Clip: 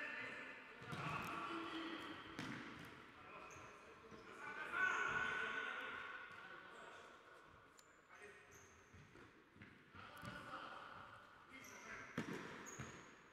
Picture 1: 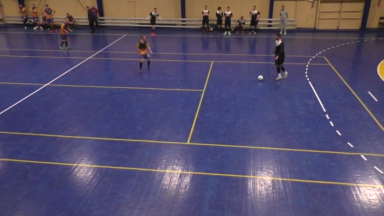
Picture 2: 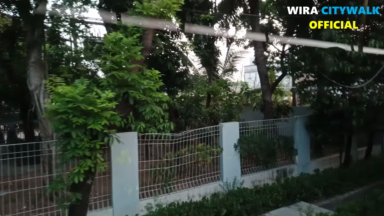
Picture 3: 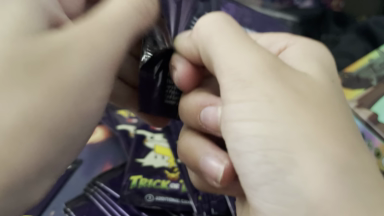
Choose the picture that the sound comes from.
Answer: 1